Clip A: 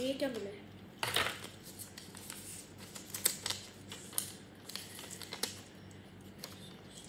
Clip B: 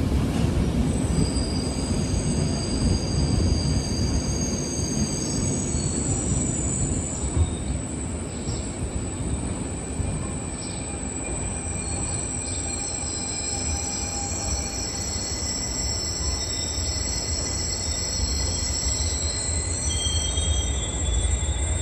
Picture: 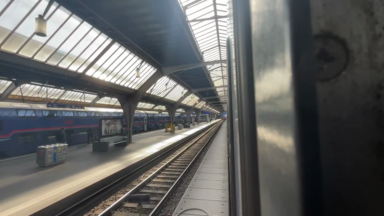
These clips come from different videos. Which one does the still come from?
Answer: B